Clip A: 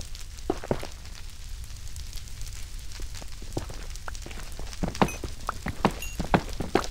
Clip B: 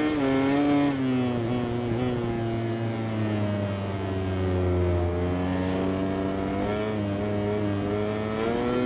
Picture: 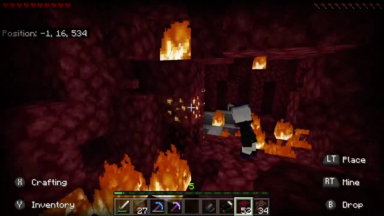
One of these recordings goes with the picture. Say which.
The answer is A